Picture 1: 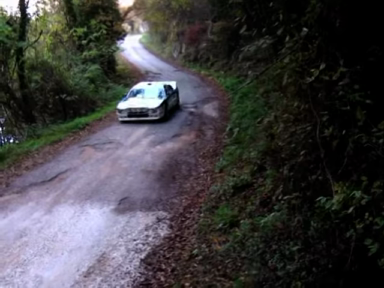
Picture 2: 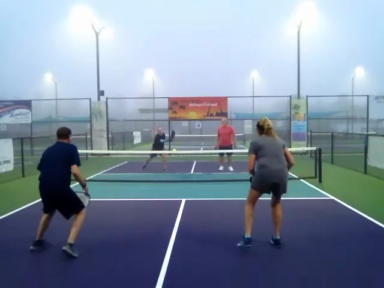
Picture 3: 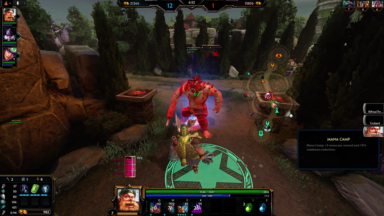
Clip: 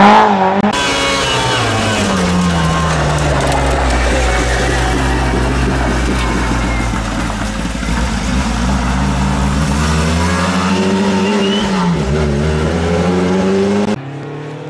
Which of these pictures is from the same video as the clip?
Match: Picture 1